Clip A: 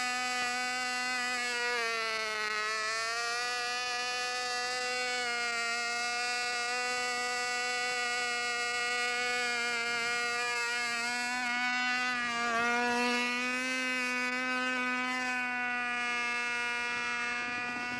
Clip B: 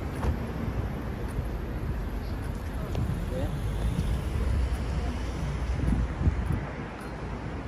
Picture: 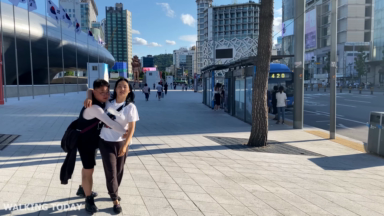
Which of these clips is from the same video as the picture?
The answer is B